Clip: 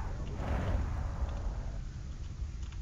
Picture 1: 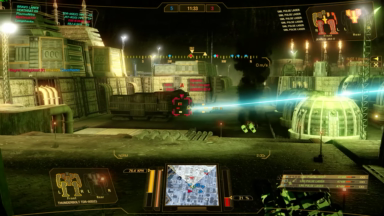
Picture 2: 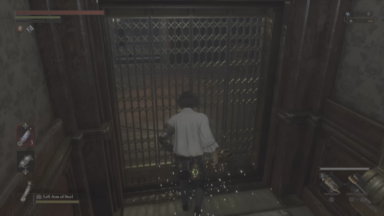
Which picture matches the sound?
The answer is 1